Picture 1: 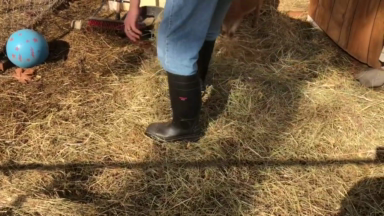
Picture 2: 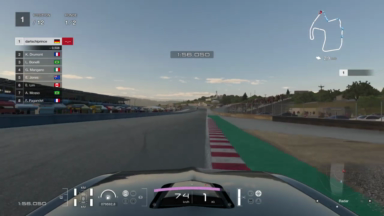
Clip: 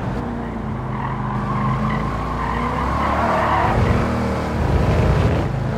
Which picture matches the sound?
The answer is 2